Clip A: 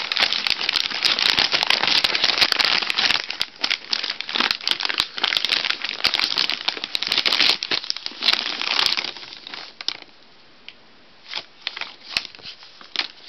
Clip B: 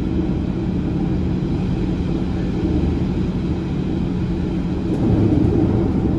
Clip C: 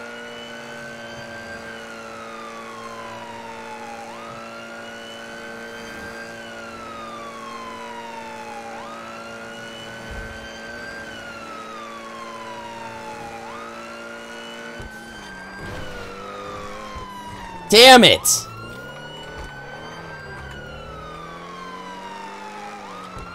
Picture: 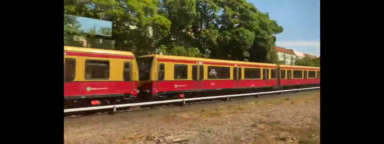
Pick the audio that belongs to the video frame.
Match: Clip B